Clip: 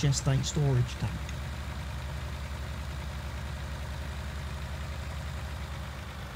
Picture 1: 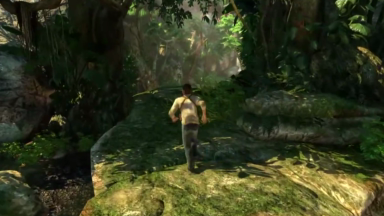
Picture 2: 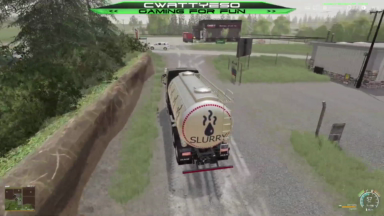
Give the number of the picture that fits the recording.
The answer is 2